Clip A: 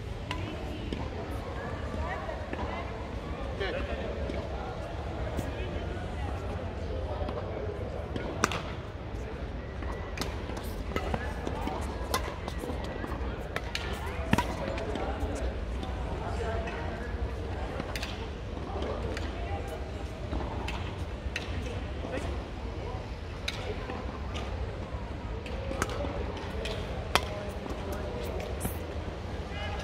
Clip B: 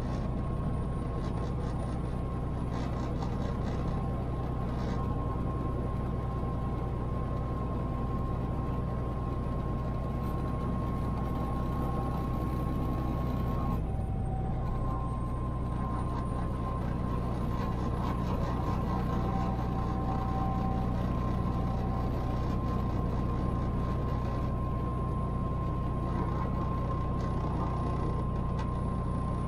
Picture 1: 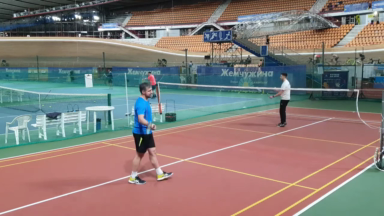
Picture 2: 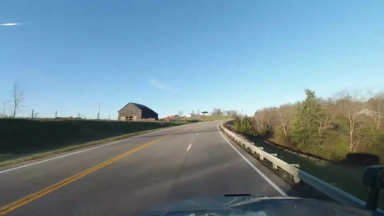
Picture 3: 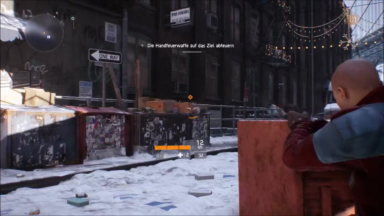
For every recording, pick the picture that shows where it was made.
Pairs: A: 1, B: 2